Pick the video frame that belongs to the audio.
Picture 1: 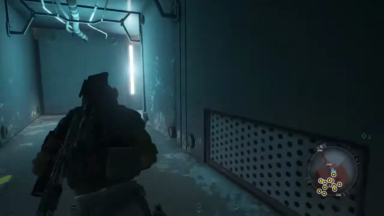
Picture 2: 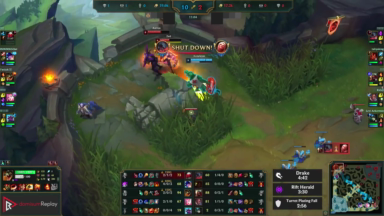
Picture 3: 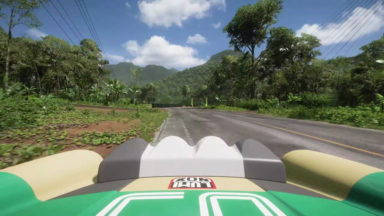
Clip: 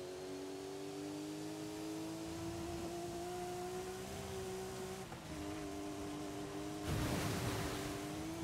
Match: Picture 3